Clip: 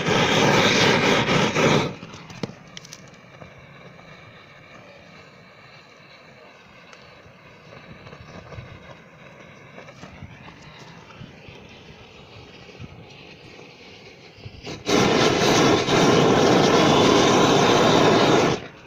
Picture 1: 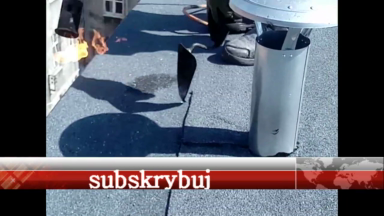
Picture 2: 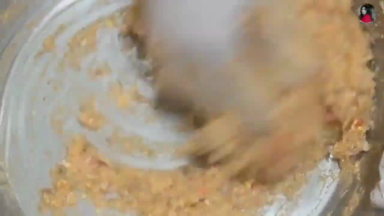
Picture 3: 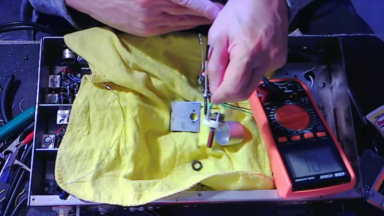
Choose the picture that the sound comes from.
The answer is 1